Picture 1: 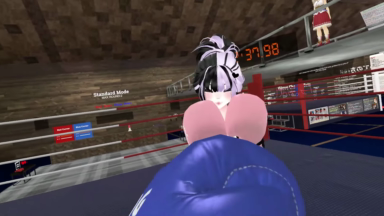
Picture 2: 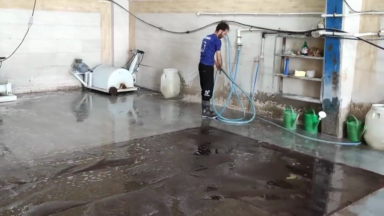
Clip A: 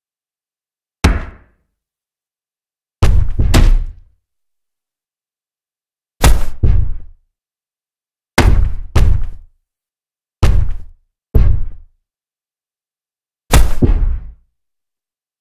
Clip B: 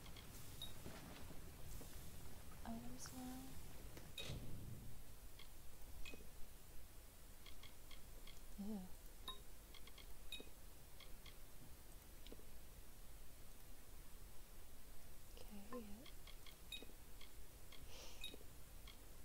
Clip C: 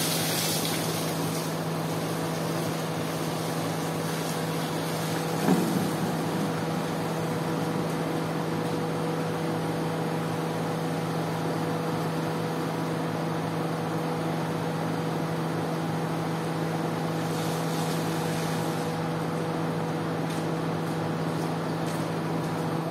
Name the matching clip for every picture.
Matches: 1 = A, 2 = C